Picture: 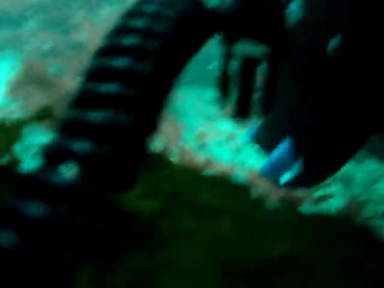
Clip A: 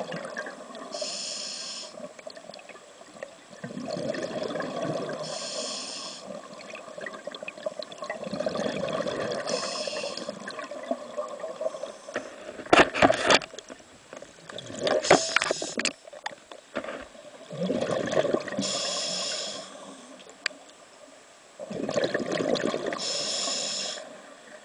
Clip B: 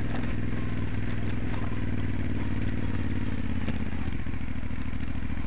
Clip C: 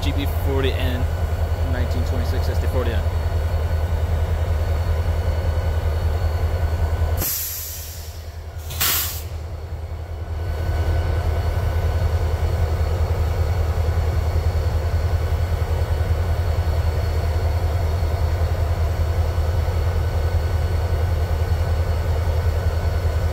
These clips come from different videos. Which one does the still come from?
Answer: A